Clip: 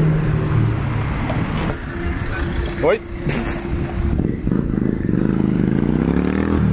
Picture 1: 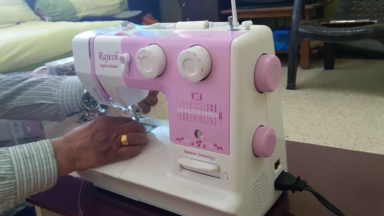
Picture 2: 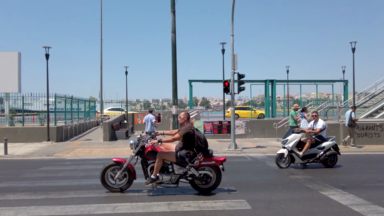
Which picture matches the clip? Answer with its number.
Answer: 2